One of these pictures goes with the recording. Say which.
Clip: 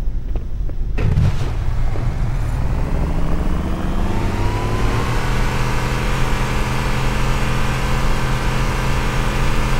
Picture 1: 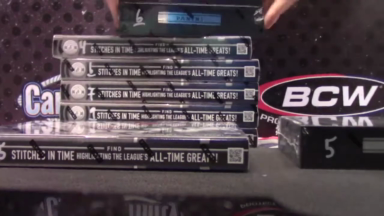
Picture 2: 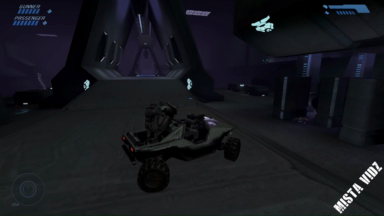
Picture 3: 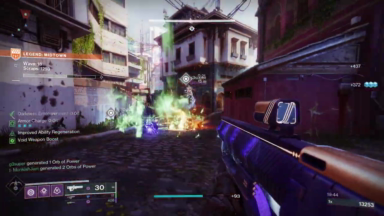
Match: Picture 2